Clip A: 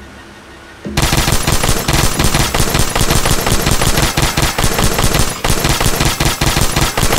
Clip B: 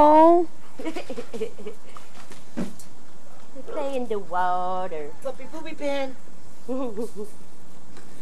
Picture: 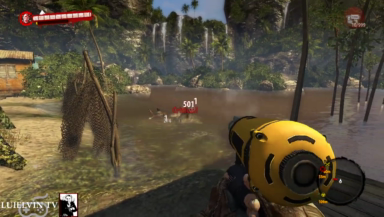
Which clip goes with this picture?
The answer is A